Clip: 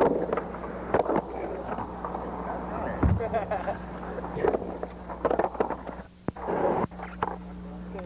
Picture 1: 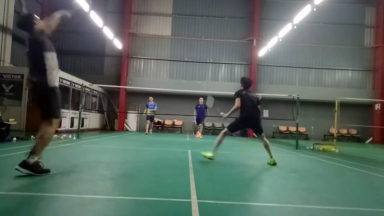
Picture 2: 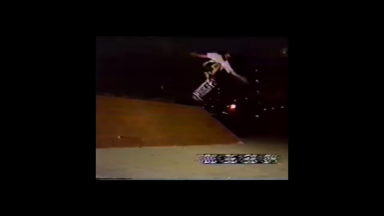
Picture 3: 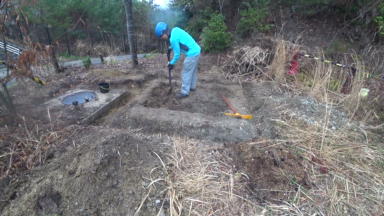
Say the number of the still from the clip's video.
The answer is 2